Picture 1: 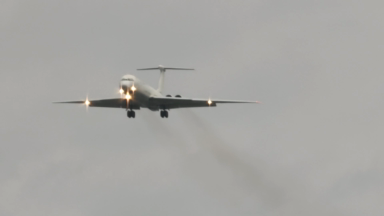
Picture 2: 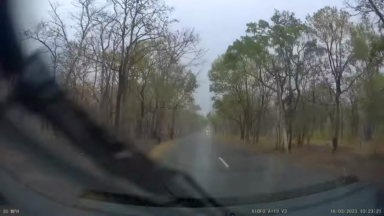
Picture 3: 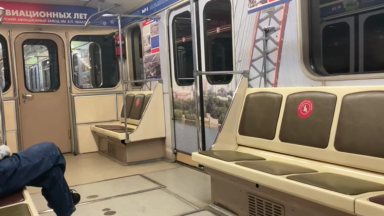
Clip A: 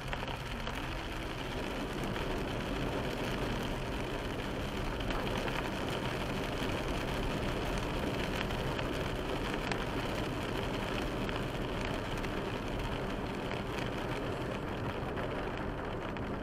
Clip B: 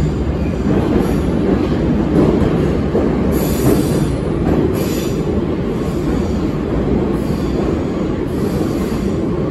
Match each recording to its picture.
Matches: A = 2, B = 3